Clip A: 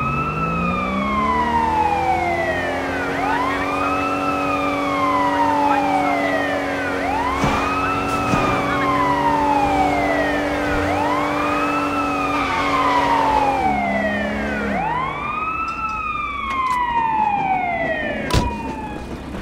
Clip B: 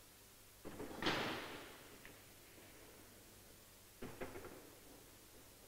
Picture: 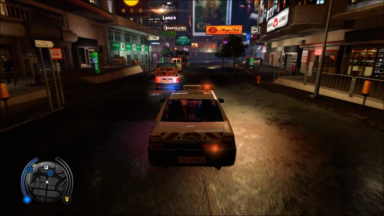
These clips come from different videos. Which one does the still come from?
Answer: A